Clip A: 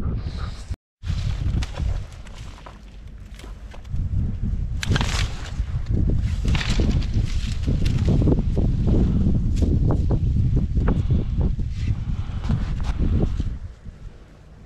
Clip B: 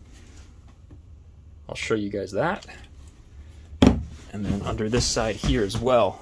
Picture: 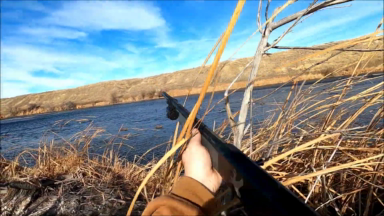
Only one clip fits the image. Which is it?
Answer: A